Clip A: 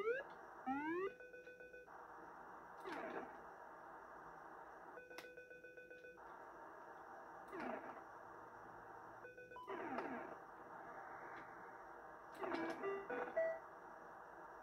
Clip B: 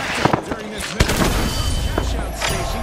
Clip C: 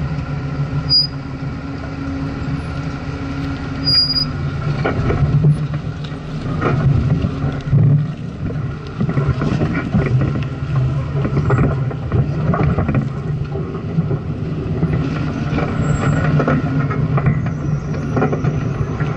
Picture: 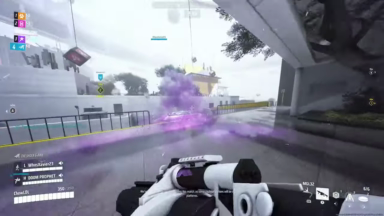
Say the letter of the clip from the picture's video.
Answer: B